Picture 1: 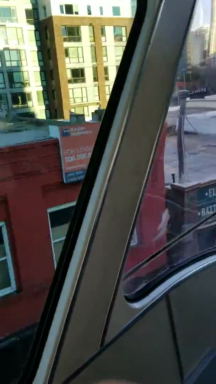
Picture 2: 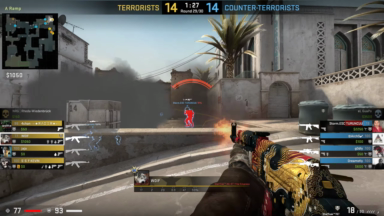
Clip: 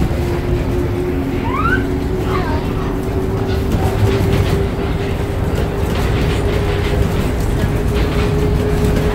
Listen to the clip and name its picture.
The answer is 1